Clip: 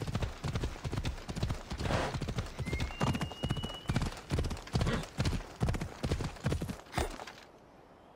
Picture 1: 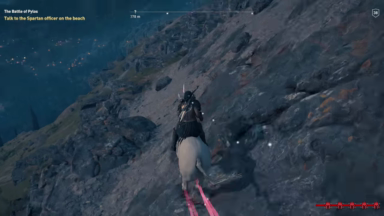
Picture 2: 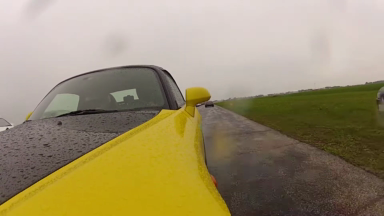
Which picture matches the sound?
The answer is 1